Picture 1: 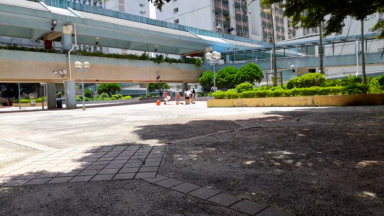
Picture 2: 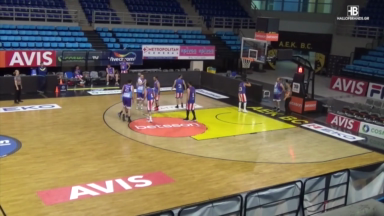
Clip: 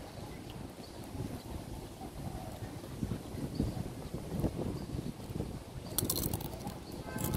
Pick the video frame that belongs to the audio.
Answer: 1